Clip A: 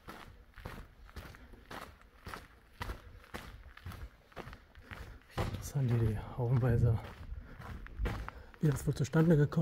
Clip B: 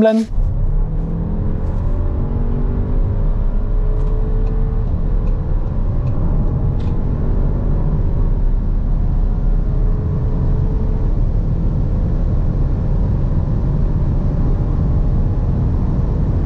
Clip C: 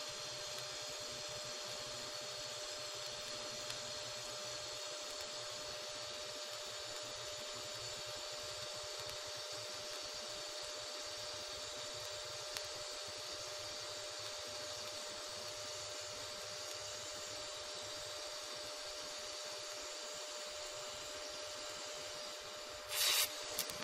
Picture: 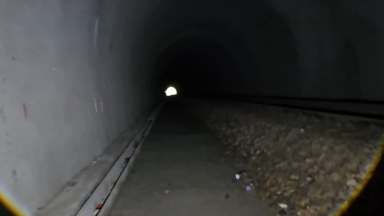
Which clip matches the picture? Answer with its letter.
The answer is A